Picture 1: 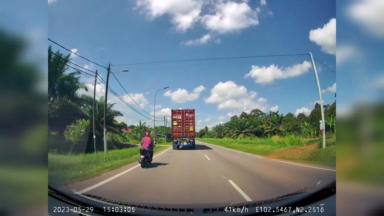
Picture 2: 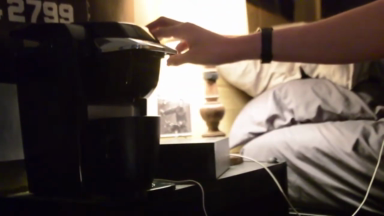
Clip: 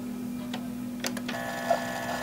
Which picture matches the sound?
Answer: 2